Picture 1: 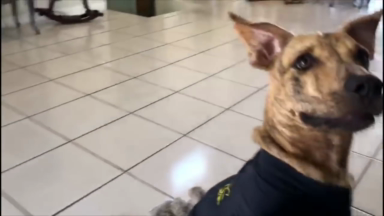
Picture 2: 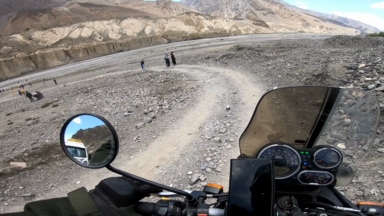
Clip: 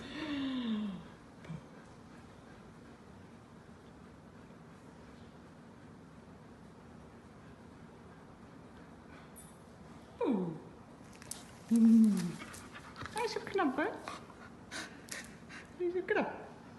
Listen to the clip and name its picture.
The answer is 1